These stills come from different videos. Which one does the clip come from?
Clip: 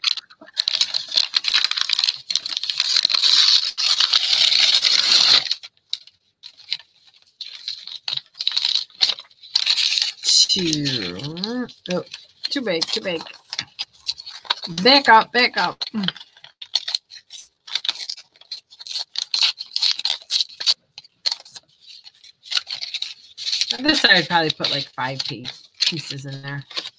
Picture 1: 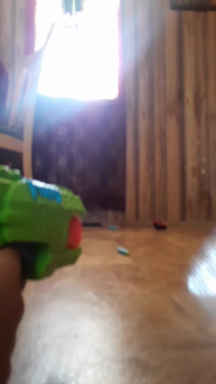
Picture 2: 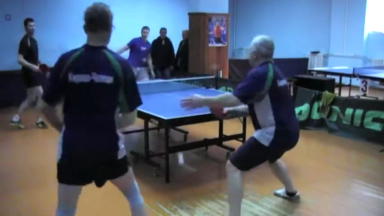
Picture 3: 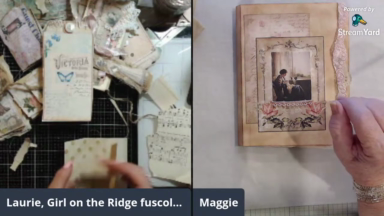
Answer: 3